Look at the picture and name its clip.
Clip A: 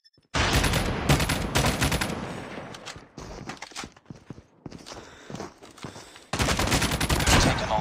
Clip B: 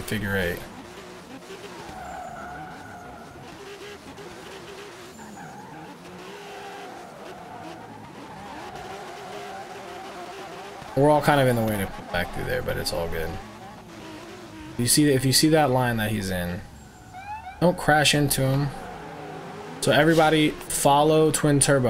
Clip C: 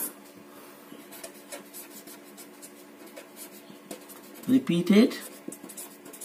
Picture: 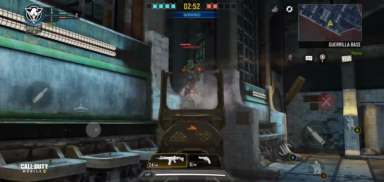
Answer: A